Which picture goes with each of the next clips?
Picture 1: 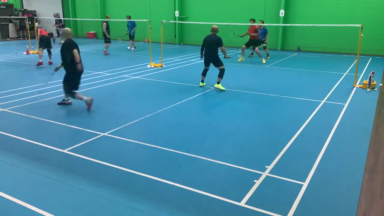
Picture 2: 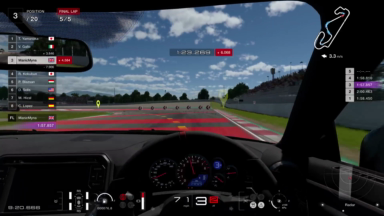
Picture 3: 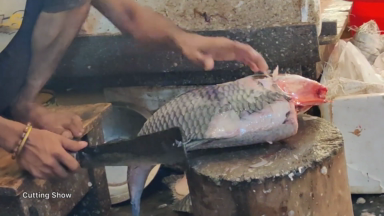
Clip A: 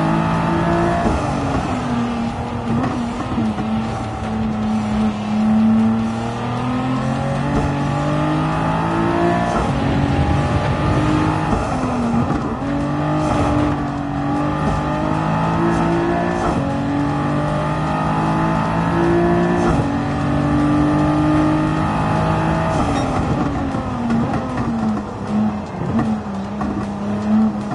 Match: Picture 2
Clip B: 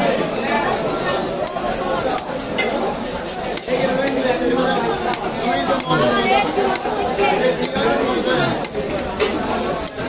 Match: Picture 3